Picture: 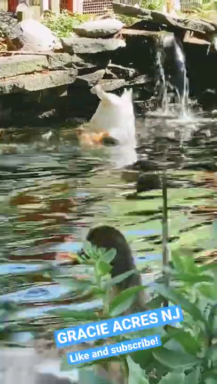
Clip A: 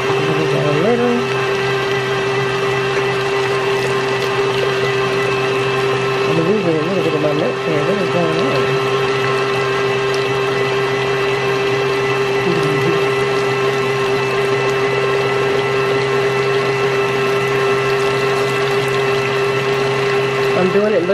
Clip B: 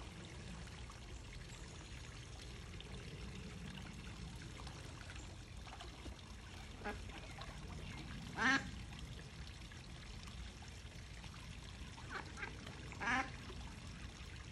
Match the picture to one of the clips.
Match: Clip B